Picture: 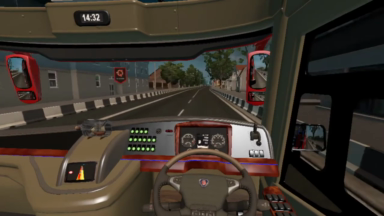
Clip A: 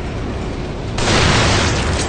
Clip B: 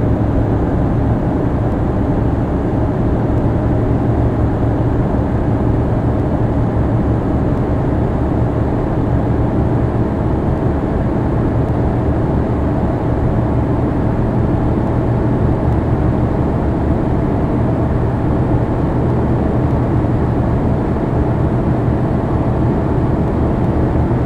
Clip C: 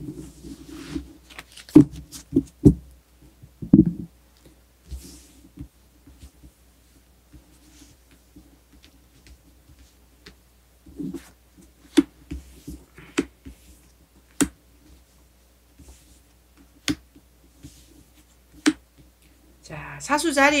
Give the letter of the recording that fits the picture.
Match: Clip B